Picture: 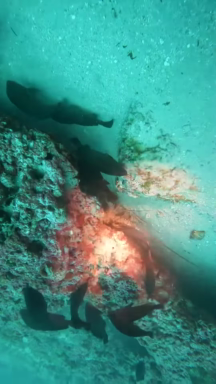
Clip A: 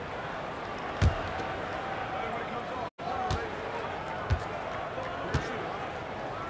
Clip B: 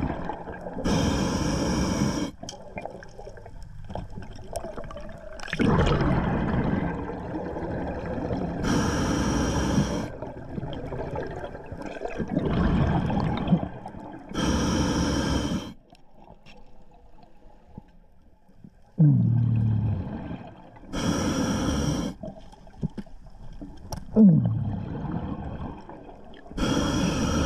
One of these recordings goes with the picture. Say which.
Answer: B